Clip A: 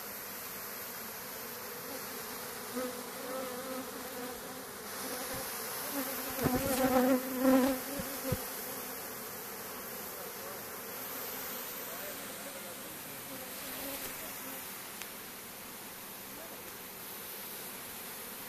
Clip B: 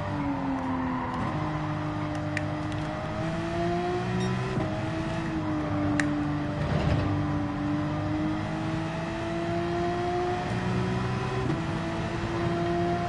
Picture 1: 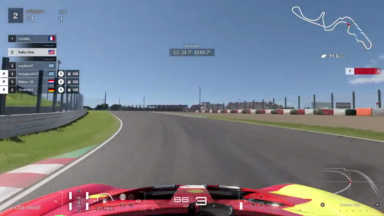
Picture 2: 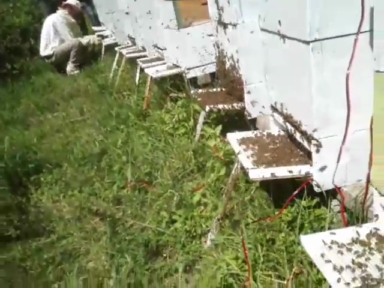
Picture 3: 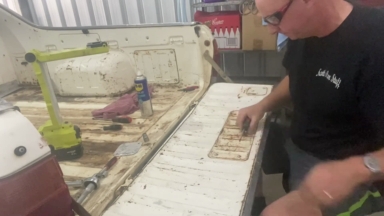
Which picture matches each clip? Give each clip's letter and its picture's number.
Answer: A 2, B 1